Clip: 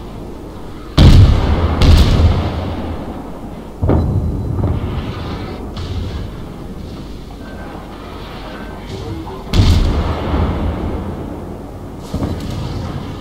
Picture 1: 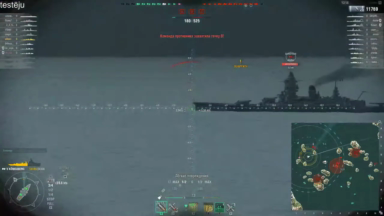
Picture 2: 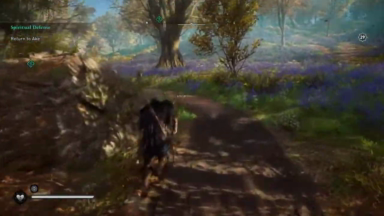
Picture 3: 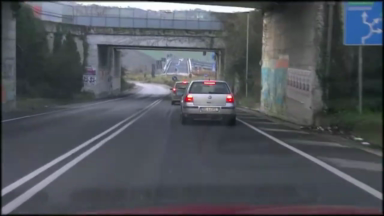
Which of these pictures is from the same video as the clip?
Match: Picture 1